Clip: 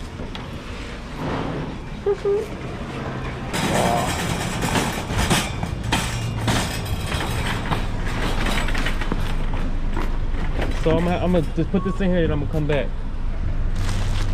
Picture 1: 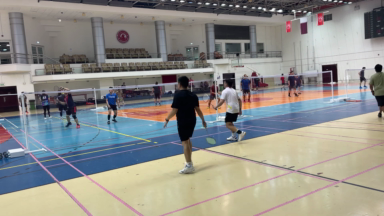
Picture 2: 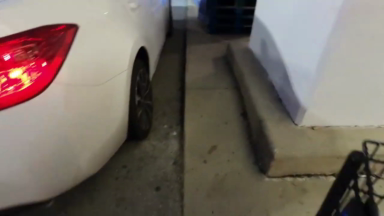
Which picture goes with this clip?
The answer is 2